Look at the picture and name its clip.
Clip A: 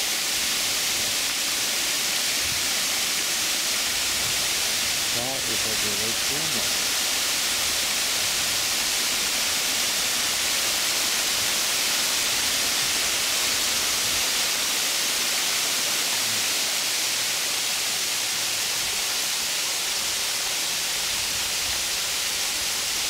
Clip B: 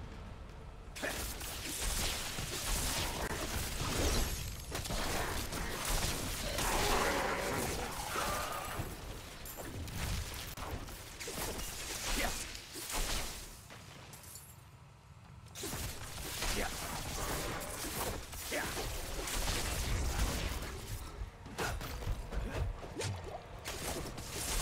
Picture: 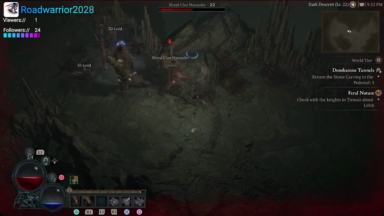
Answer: B